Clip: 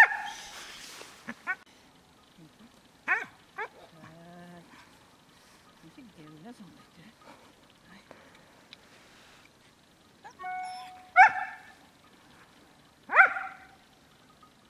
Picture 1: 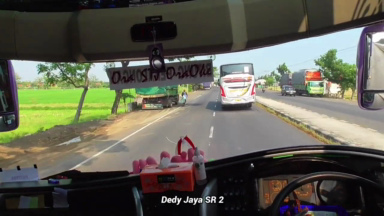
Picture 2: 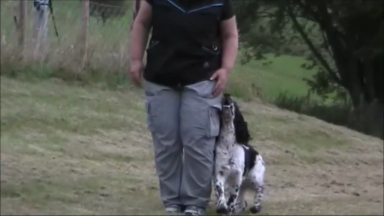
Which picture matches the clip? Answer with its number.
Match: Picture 2